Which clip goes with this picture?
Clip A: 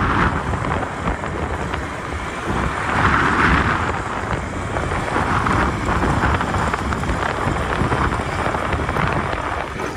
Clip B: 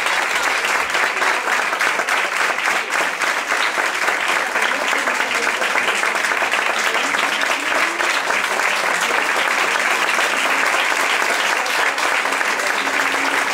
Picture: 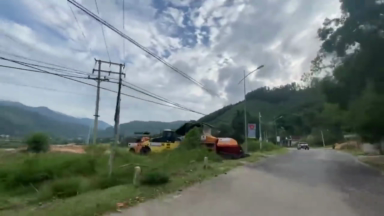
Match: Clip A